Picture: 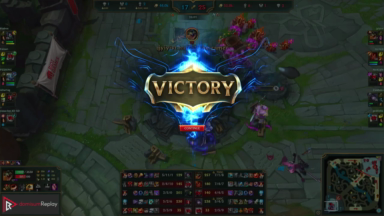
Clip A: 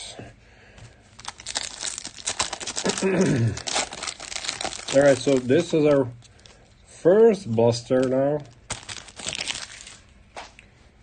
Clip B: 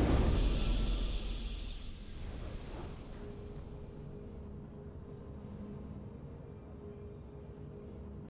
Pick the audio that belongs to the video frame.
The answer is B